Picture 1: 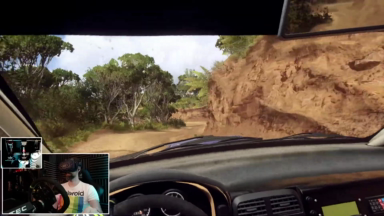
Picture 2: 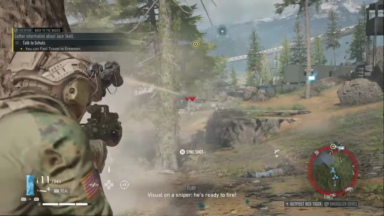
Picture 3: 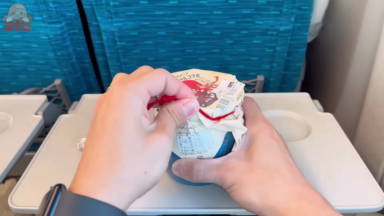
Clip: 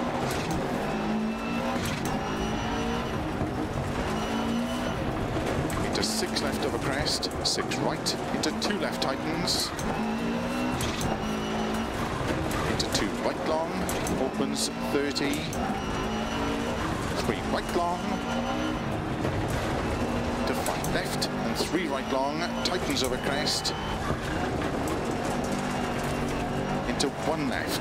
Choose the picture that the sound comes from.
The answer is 1